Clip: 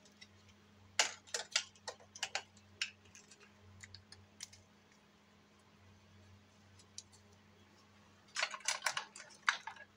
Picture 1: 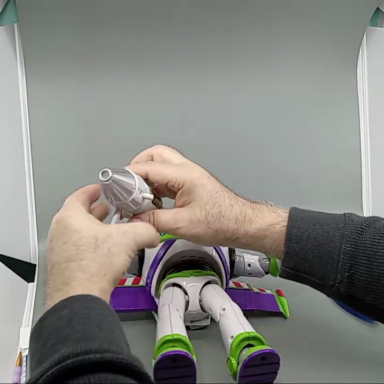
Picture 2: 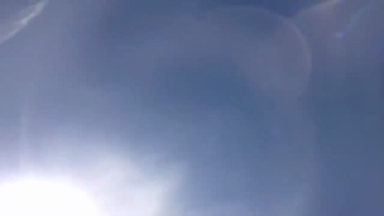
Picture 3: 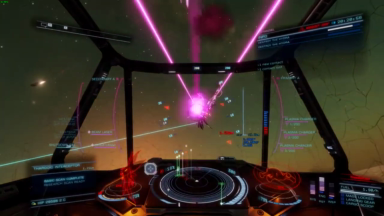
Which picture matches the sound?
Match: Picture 1